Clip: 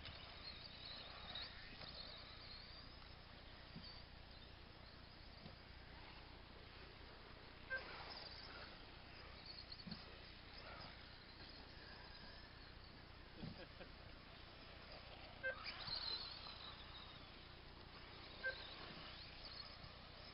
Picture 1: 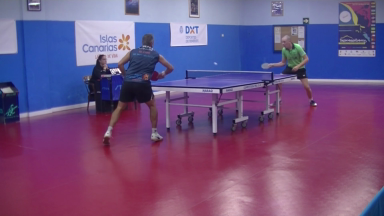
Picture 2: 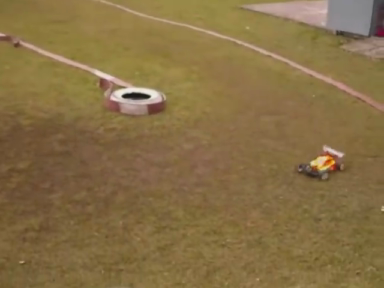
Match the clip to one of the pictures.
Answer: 2